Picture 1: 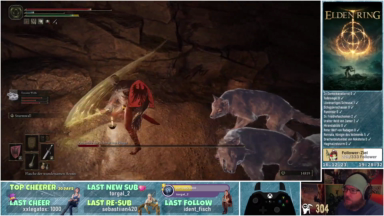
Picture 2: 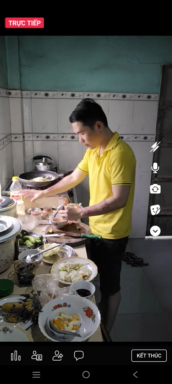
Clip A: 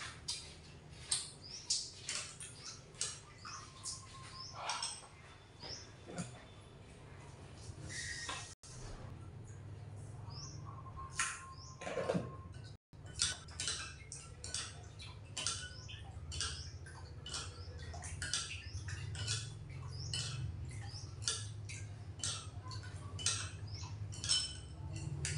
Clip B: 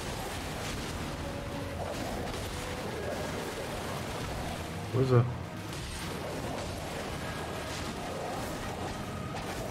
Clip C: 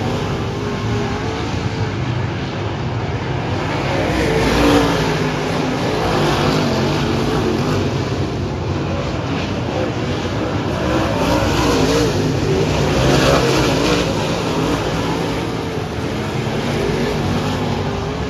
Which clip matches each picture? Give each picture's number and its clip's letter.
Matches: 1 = B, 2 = A